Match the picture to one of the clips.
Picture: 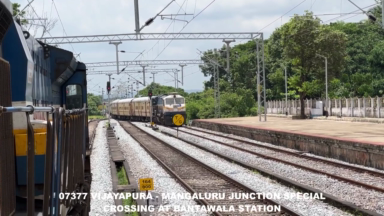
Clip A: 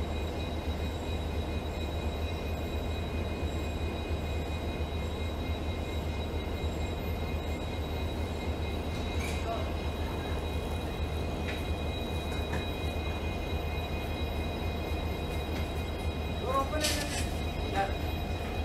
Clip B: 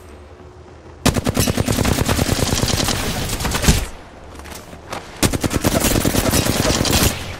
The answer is A